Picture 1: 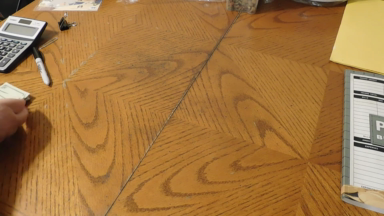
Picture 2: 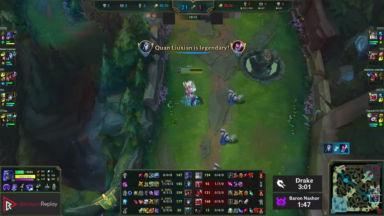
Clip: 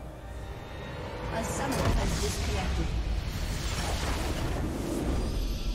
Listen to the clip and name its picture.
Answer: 2